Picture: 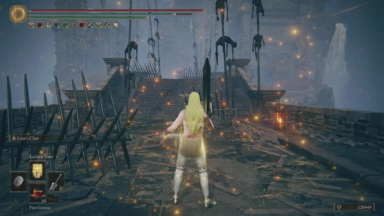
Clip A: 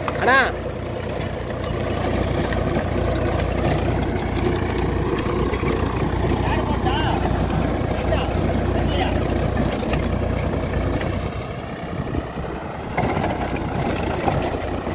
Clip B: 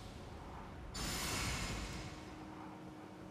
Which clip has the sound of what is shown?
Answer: B